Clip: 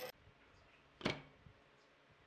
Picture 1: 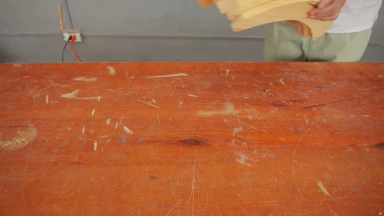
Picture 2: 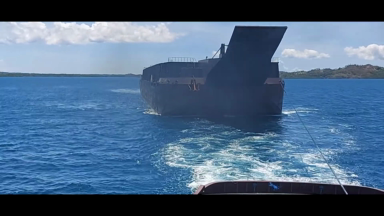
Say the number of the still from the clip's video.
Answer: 1